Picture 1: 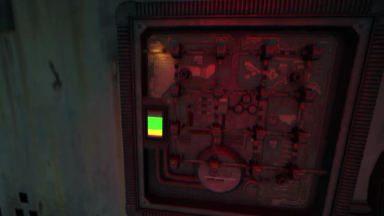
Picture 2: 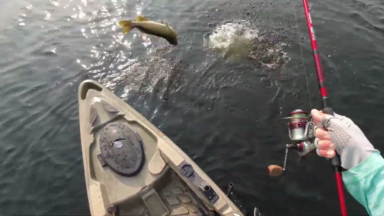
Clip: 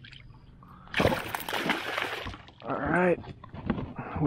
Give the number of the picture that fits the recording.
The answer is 2